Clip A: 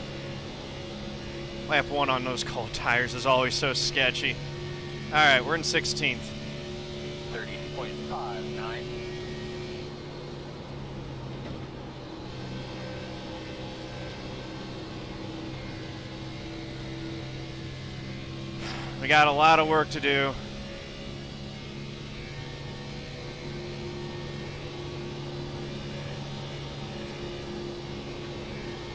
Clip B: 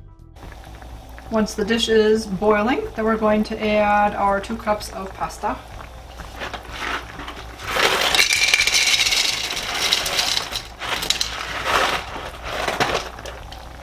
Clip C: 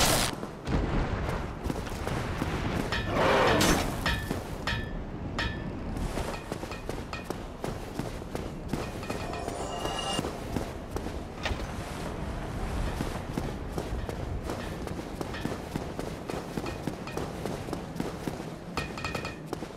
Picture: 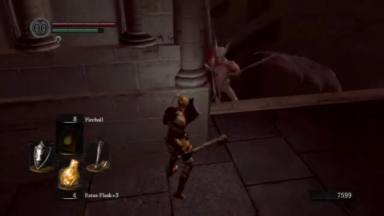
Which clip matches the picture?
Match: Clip C